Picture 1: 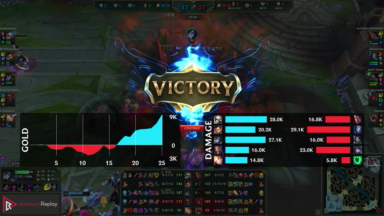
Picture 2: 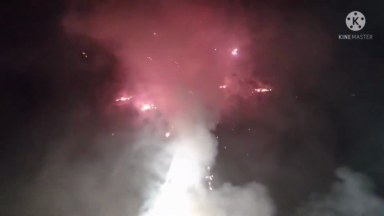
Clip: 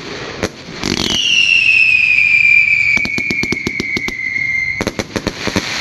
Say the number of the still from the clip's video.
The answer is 2